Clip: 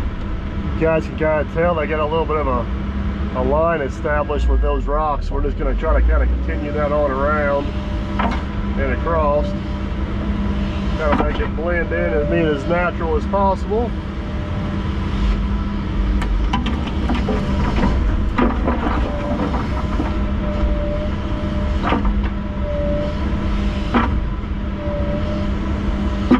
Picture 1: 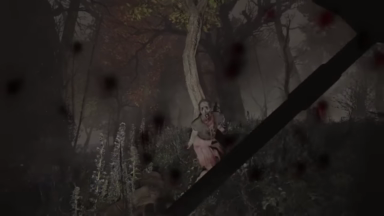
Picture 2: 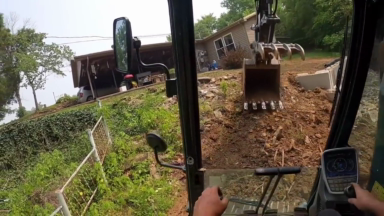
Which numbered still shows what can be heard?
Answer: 2